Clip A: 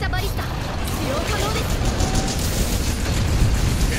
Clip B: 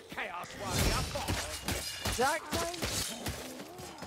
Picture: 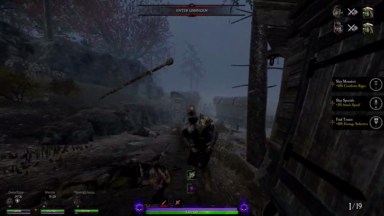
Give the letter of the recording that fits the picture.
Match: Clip B